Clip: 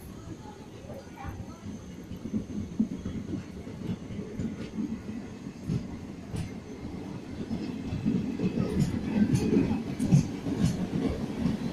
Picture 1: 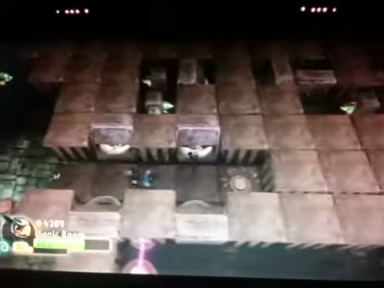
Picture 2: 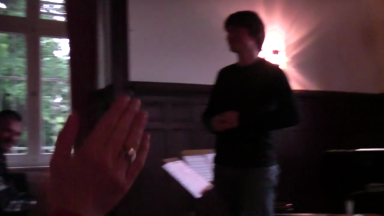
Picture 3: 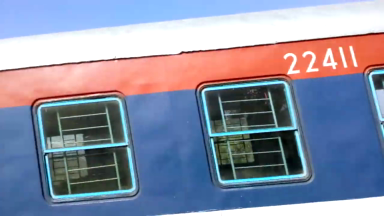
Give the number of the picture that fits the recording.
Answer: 3